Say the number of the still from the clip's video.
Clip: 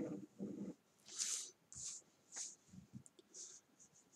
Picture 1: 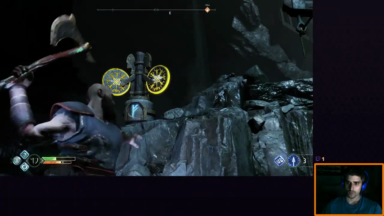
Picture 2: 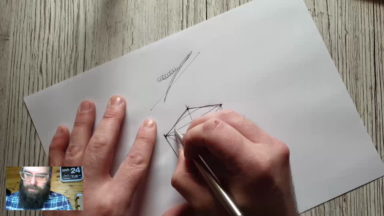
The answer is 2